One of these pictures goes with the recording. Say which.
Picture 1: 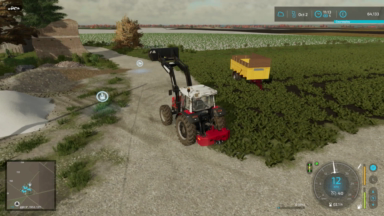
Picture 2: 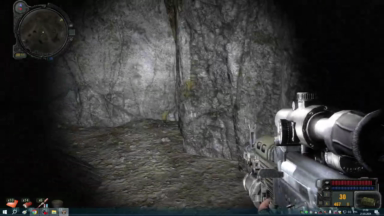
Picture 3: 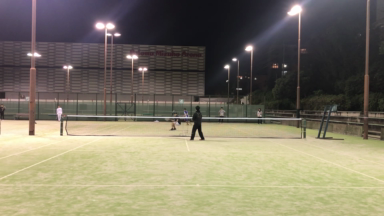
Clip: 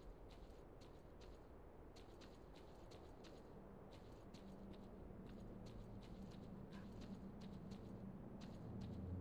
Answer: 2